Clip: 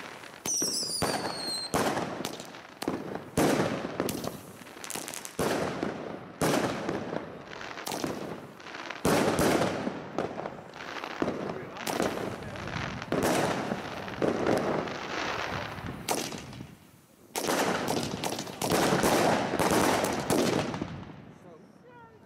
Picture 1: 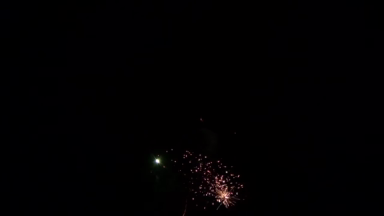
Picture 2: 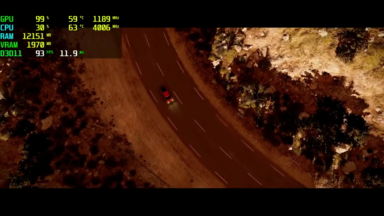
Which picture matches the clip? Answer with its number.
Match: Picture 1